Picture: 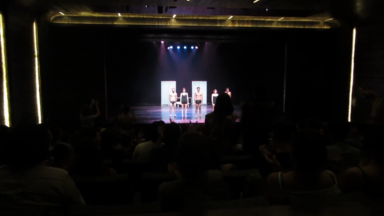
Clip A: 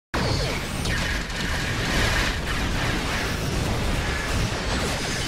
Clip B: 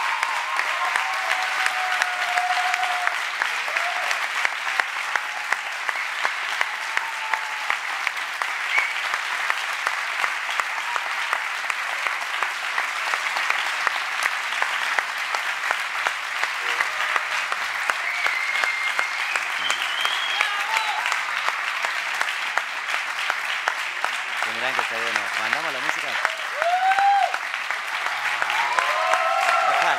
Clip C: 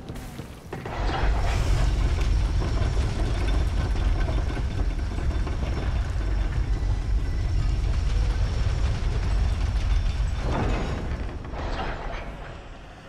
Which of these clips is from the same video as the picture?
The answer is B